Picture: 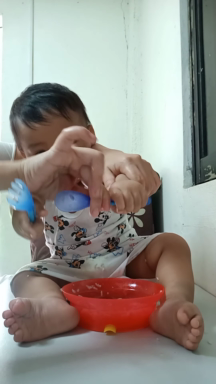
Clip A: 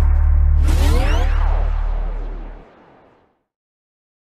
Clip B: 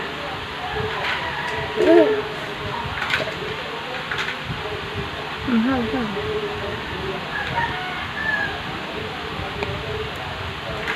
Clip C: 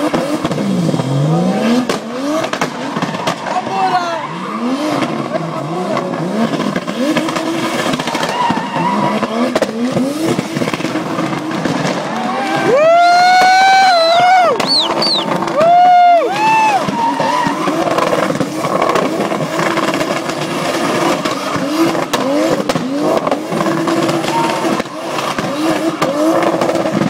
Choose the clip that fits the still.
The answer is B